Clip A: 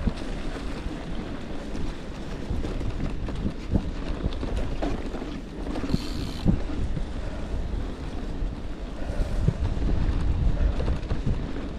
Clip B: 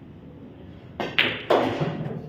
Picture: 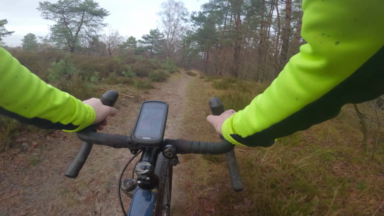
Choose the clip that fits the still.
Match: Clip A